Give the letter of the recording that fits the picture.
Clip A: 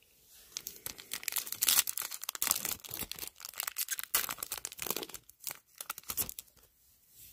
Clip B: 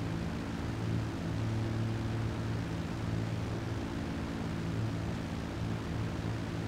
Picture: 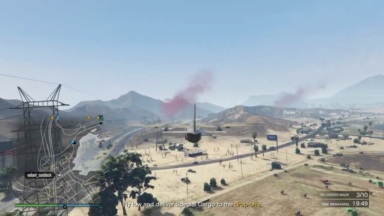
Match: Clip B